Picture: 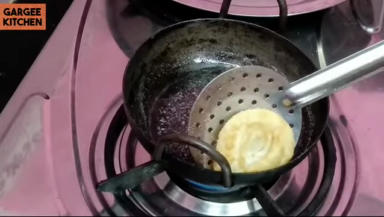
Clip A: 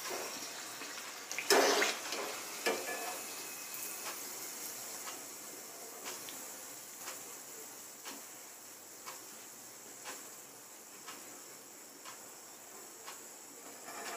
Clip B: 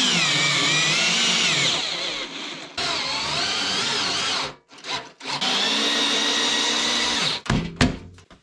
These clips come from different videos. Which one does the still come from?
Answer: A